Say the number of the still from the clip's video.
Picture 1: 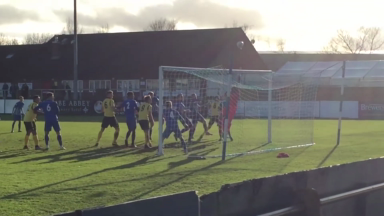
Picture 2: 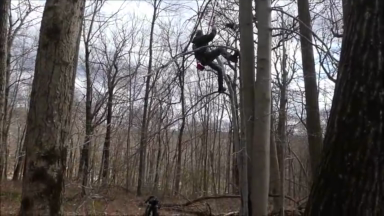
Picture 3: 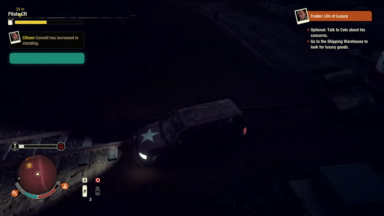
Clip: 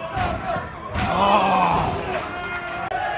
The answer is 1